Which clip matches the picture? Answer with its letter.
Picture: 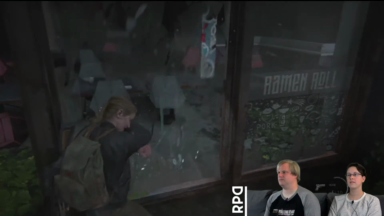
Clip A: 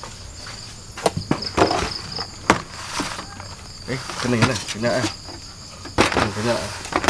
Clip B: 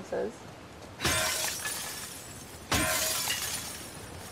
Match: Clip B